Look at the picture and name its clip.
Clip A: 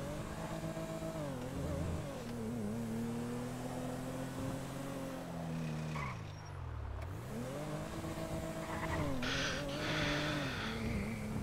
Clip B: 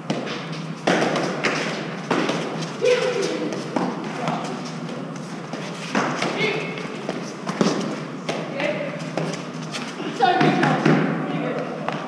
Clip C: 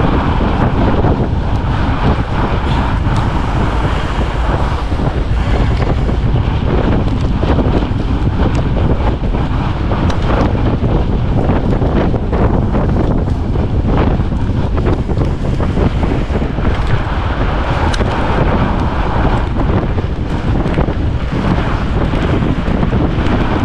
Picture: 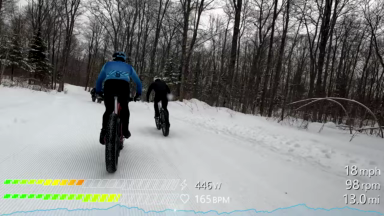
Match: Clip C